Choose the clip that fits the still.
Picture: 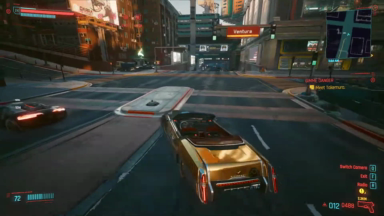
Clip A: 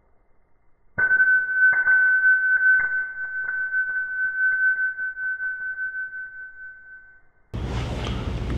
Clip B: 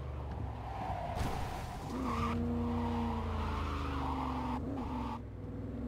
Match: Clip B